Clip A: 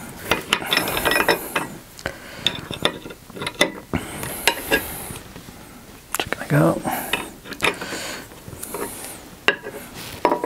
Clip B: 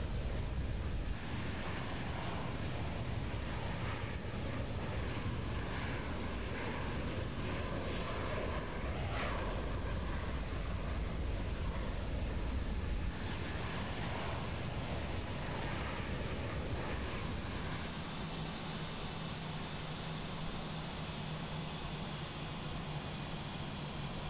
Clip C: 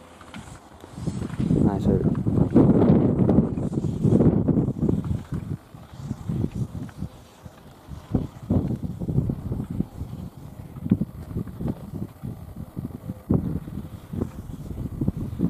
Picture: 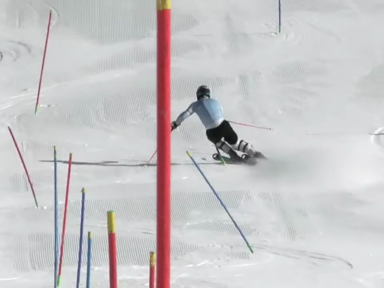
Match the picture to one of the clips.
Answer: C